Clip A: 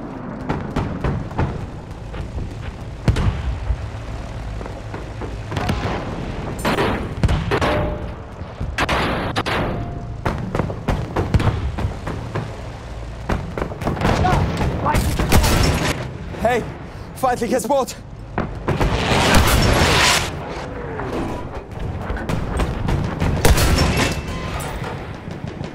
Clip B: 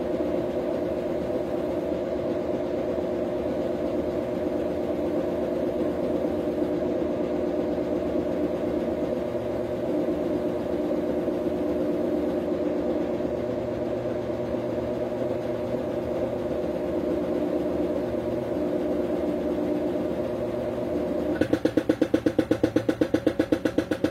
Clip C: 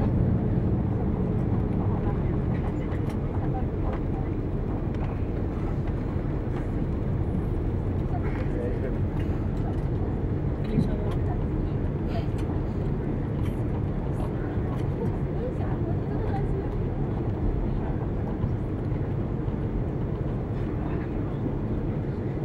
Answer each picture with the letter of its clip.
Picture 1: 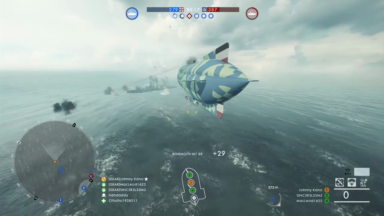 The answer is A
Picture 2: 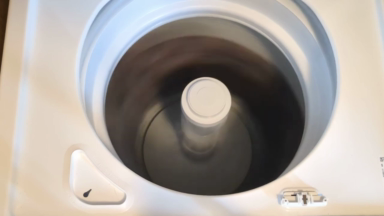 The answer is B